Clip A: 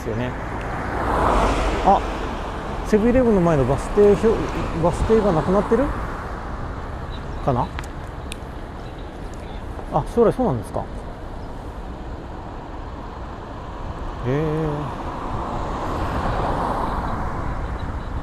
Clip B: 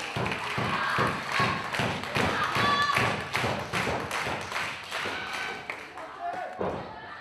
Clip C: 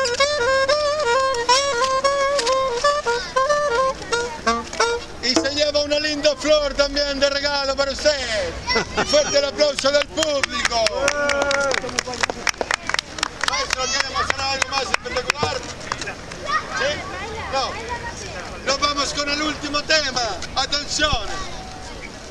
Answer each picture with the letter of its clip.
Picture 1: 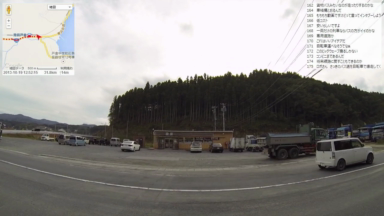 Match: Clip A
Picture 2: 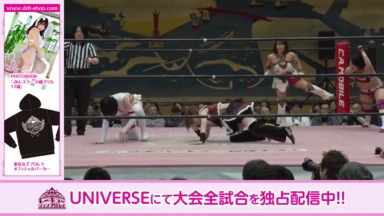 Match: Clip B